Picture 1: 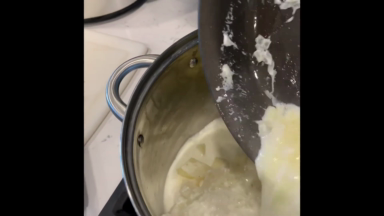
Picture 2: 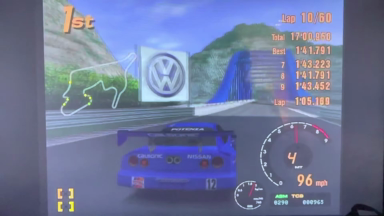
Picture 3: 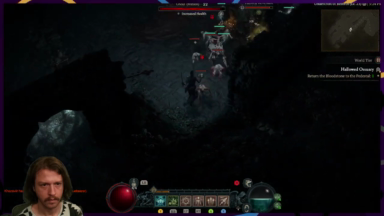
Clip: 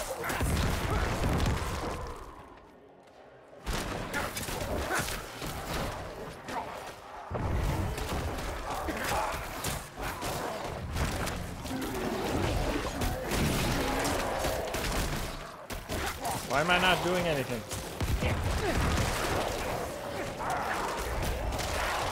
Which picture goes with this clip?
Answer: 3